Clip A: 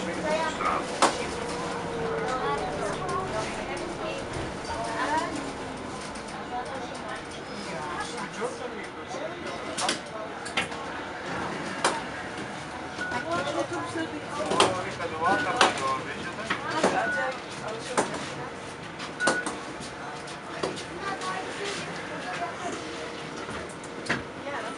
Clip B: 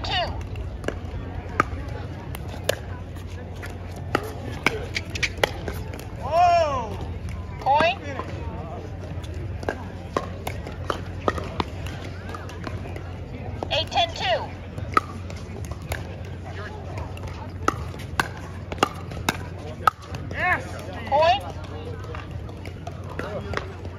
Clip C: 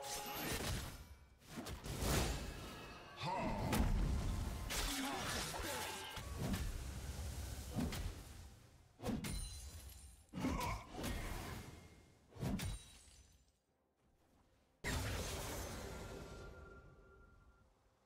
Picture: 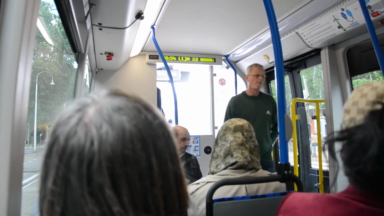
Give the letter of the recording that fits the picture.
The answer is A